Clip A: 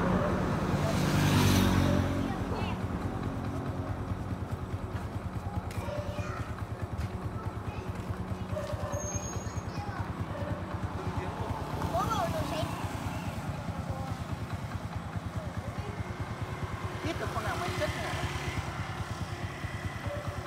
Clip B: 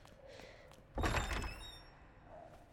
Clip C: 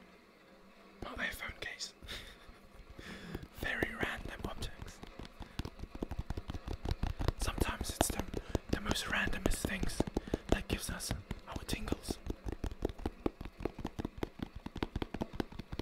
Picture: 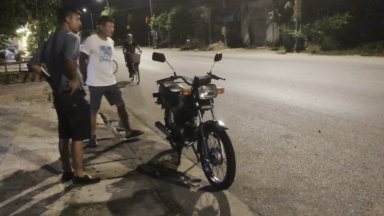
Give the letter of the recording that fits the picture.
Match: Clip A